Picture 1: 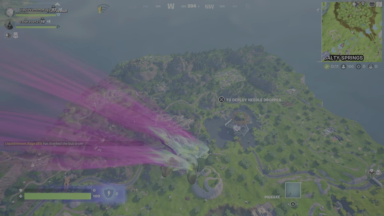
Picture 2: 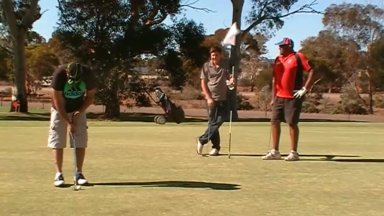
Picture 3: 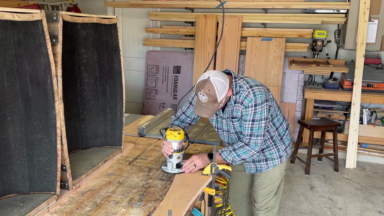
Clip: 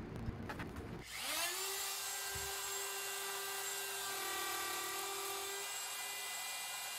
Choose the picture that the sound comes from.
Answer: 3